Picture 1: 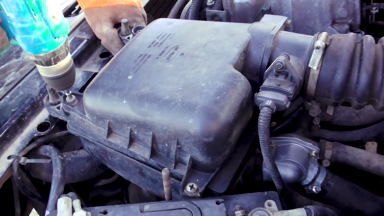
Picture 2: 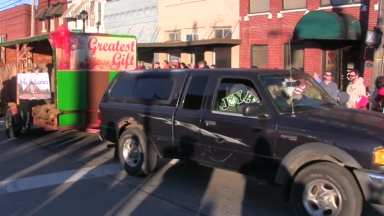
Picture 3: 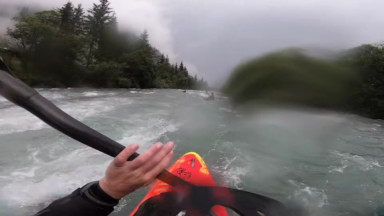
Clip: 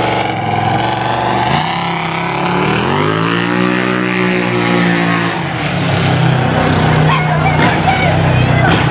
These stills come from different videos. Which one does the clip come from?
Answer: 2